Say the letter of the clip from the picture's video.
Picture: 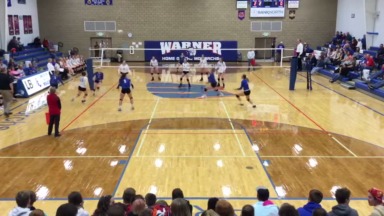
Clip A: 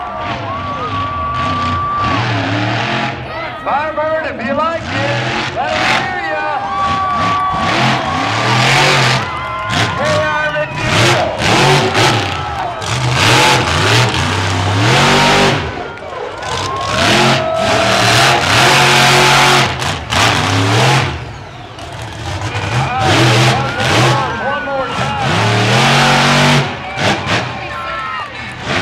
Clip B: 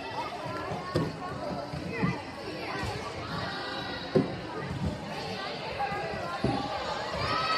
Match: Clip B